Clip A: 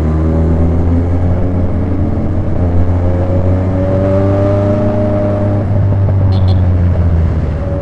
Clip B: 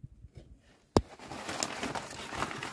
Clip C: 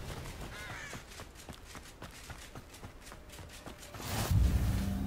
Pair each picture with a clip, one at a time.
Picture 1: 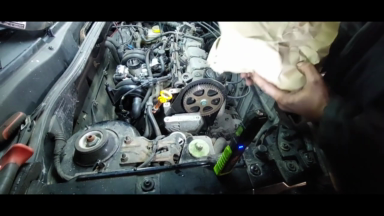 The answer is B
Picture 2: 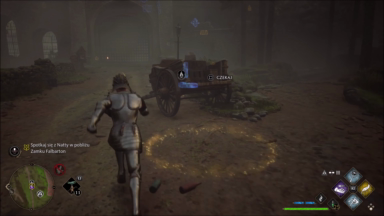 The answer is C